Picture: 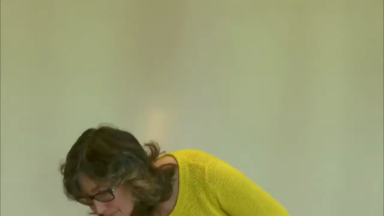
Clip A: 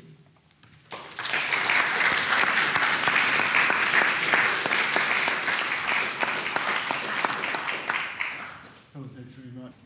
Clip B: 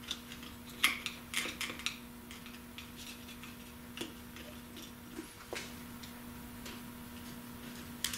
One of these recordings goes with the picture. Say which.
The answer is A